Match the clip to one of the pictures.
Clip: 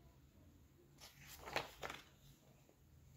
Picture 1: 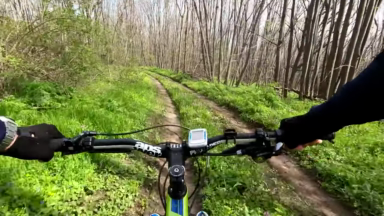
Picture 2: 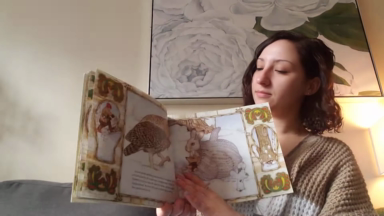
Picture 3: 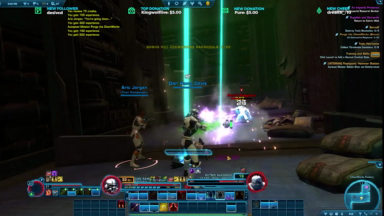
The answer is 2